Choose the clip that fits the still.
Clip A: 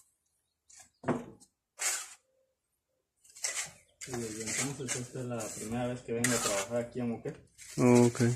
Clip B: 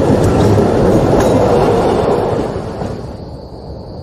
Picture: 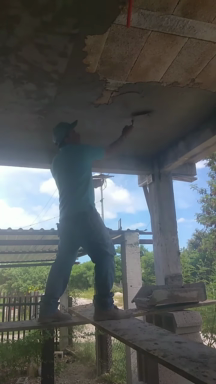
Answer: A